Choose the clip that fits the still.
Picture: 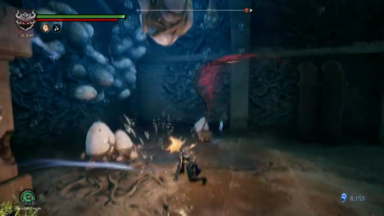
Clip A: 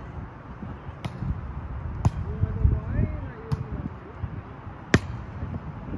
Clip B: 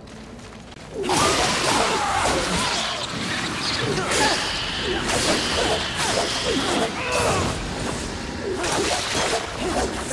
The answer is B